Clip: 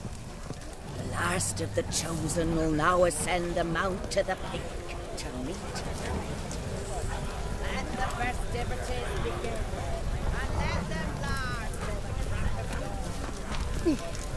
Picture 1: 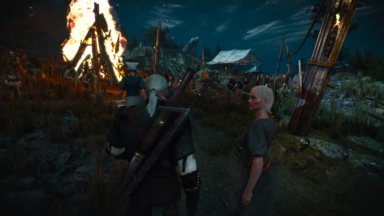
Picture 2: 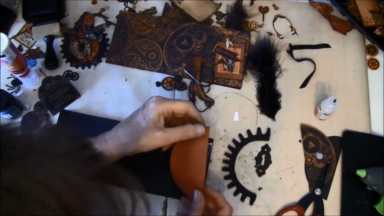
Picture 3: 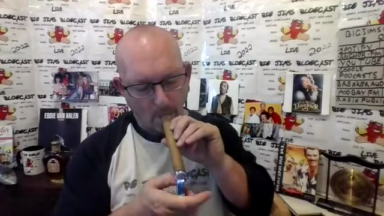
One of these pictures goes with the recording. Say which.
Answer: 1